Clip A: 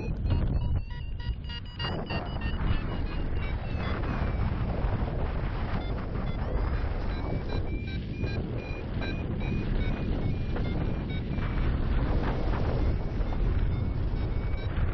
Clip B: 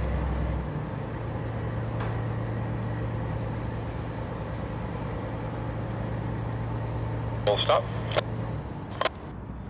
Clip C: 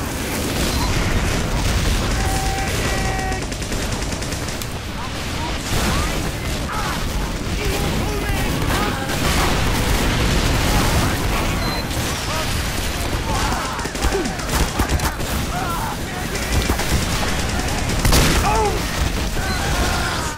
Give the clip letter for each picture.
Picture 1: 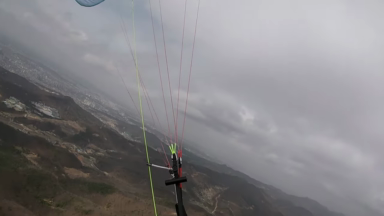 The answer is A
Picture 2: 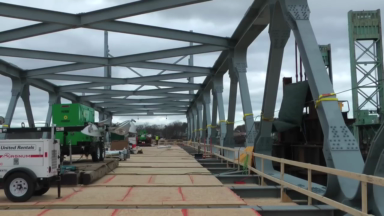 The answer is B